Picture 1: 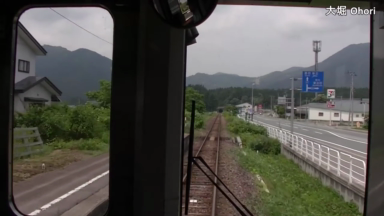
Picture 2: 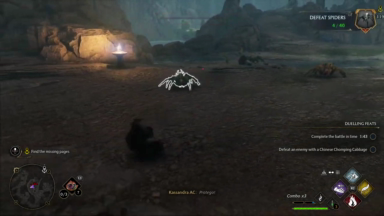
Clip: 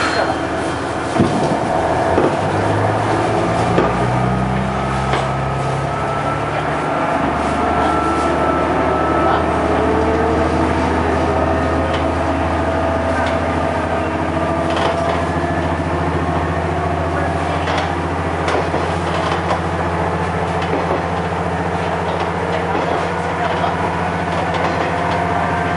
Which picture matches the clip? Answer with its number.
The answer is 1